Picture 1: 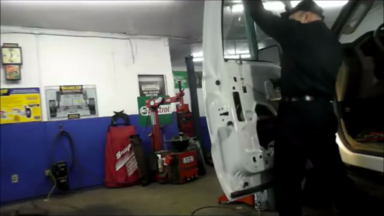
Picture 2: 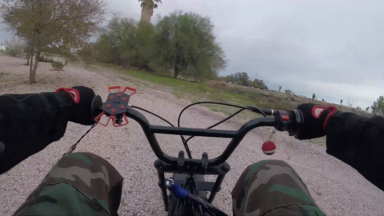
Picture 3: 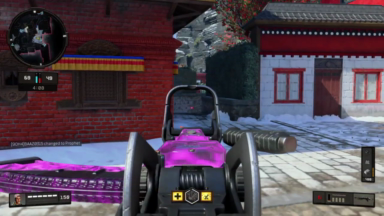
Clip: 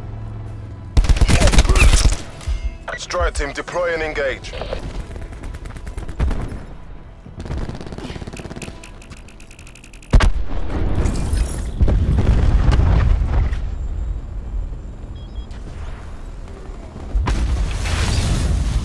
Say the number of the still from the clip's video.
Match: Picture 3